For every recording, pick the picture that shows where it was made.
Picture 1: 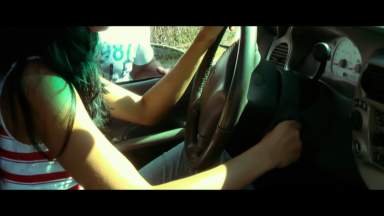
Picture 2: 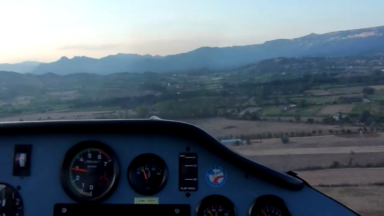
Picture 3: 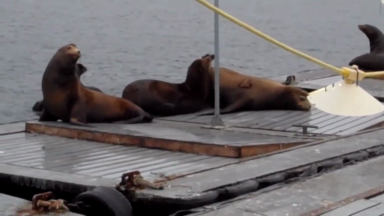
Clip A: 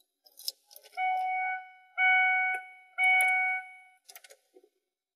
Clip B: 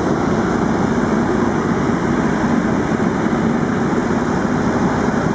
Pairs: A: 1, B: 2